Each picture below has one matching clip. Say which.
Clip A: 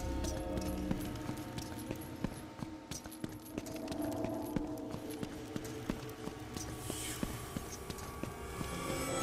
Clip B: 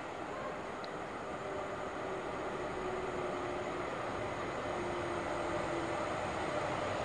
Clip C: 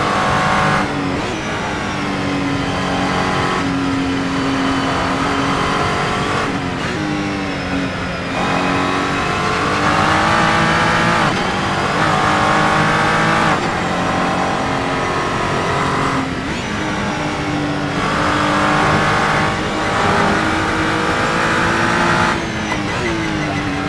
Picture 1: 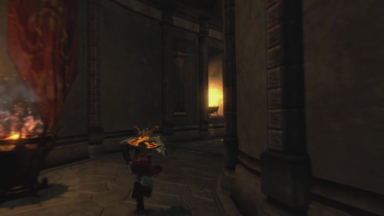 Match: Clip A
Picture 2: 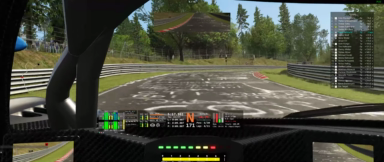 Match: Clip C